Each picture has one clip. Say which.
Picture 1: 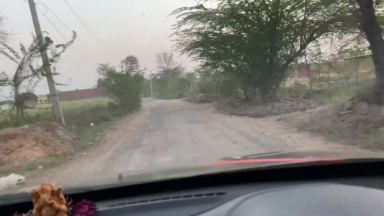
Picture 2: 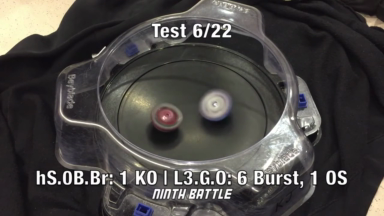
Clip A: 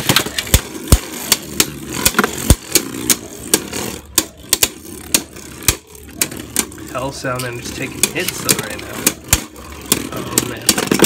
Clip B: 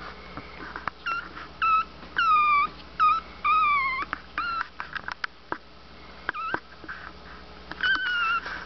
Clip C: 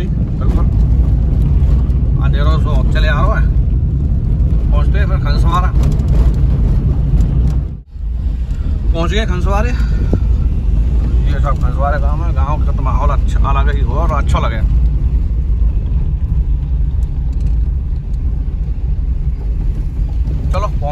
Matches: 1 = C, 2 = A